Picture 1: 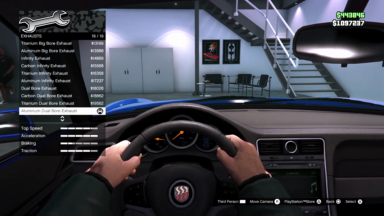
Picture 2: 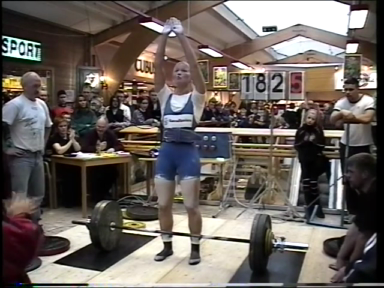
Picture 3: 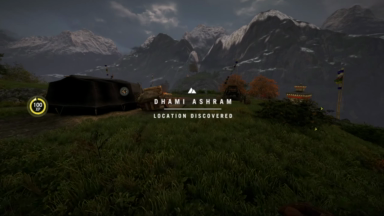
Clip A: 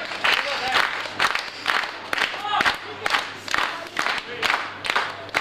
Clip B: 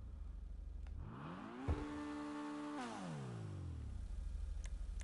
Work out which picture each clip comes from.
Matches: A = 2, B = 1